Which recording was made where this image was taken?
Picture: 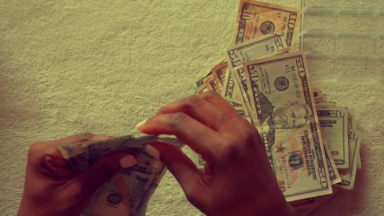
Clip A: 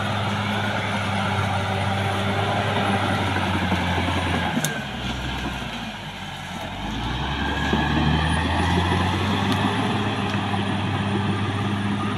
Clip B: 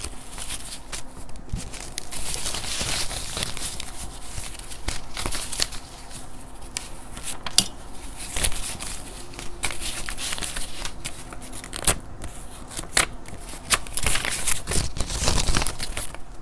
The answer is B